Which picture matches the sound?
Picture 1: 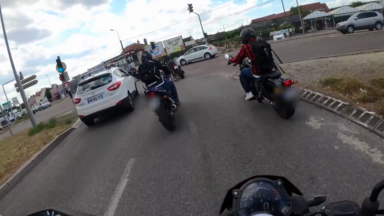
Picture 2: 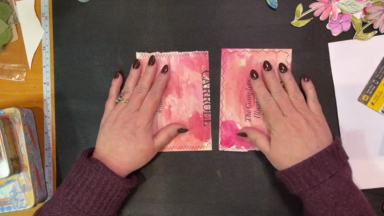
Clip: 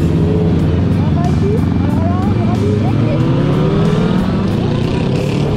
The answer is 1